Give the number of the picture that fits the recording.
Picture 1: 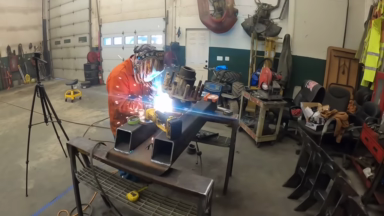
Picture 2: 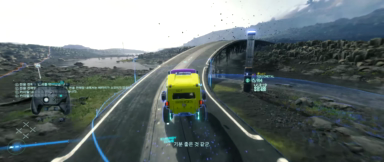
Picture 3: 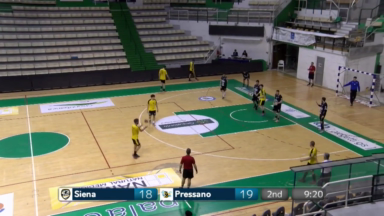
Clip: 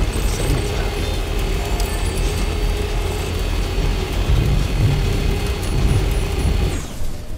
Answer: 2